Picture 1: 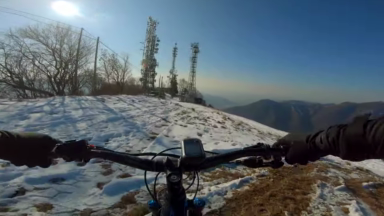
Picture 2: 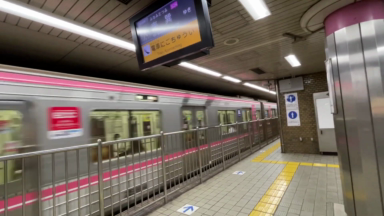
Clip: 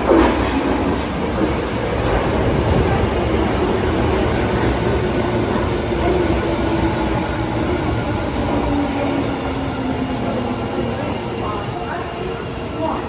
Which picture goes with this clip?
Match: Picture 2